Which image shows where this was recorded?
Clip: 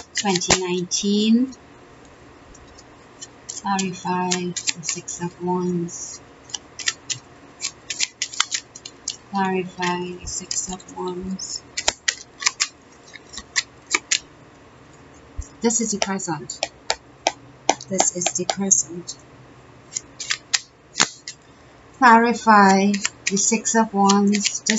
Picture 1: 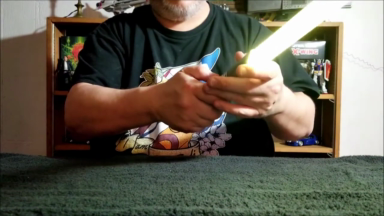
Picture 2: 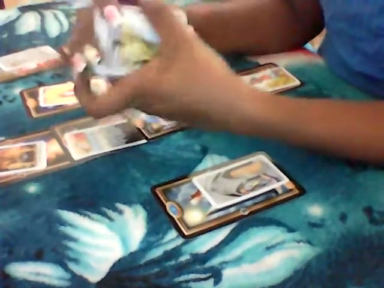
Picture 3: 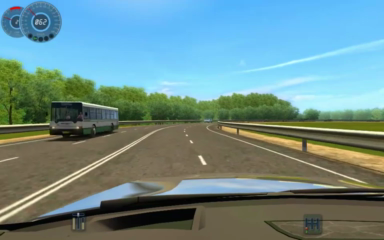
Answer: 2